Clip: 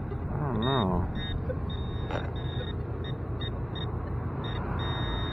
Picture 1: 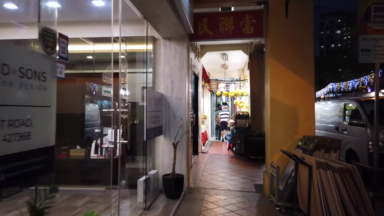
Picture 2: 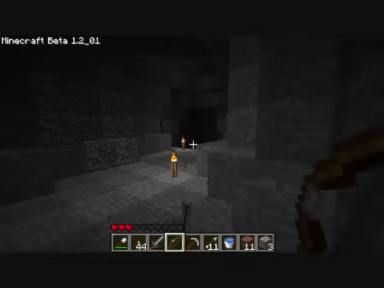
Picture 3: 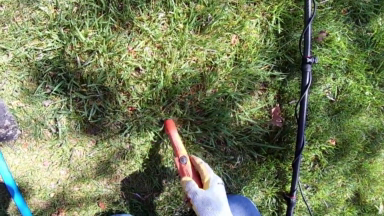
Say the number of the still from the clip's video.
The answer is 3